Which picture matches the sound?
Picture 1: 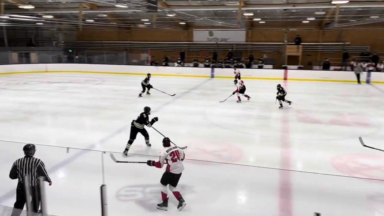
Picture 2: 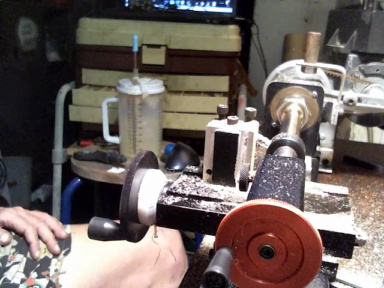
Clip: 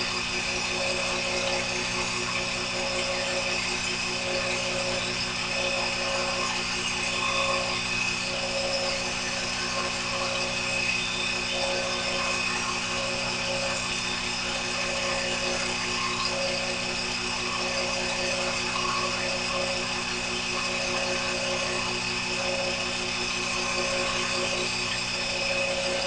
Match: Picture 2